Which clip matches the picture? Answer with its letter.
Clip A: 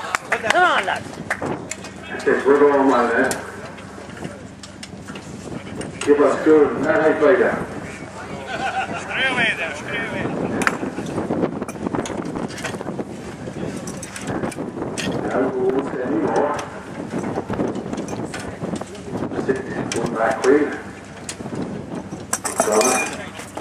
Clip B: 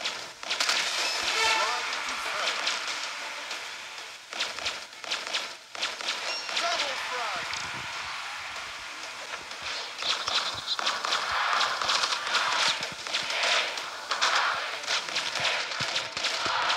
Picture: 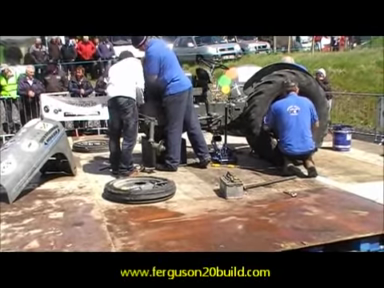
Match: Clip A